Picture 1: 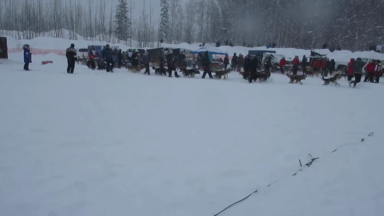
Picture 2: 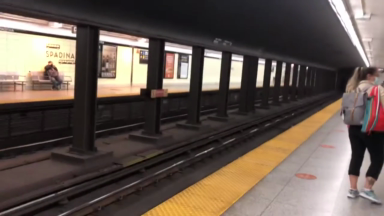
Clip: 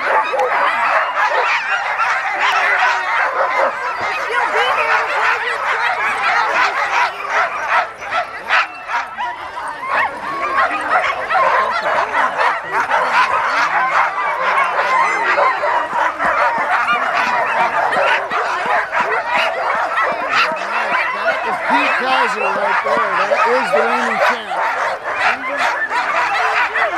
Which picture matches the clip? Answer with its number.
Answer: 1